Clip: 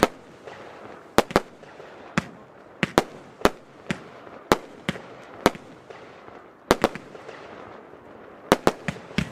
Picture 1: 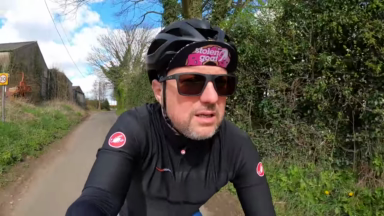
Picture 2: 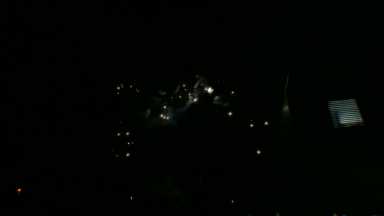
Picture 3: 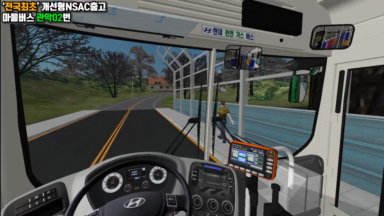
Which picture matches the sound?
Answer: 2